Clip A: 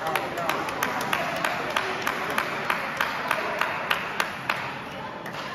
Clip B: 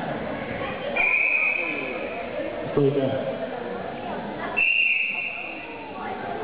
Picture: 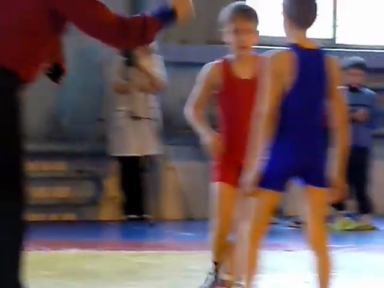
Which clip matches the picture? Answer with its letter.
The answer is B